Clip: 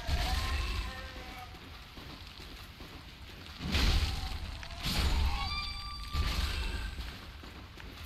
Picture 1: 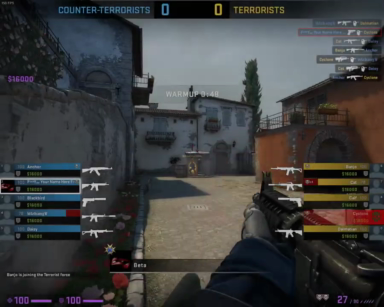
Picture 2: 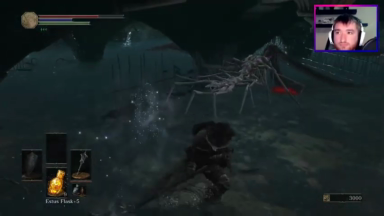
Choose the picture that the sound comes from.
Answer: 2